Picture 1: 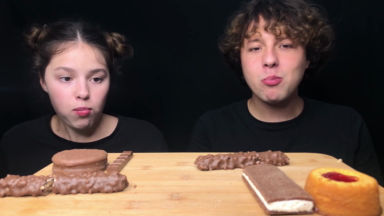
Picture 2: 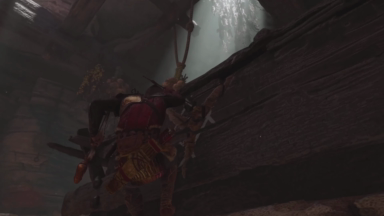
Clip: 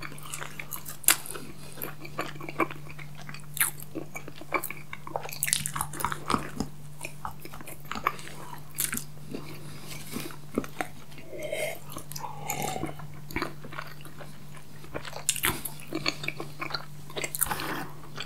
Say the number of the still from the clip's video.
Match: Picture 1